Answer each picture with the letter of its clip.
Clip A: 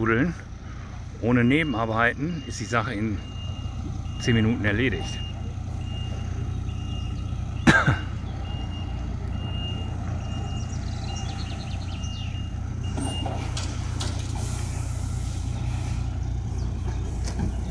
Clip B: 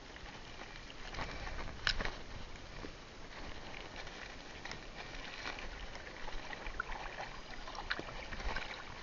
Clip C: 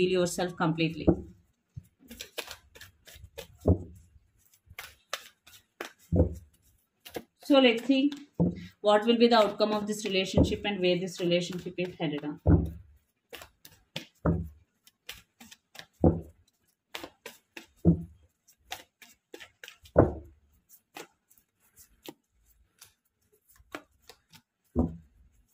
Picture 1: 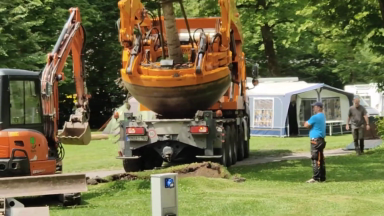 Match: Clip A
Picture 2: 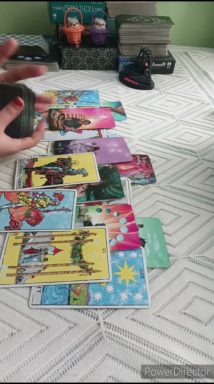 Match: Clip C